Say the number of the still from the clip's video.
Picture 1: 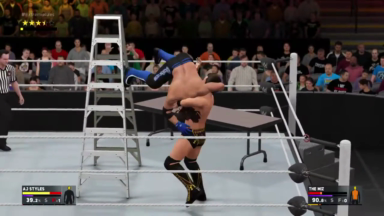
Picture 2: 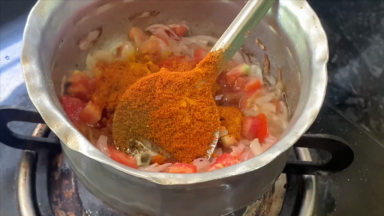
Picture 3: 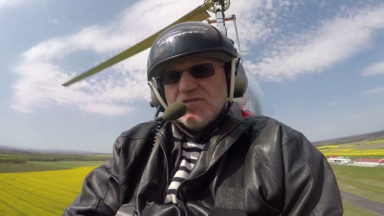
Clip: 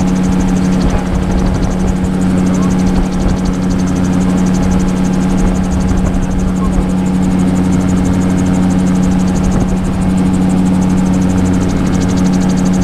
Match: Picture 3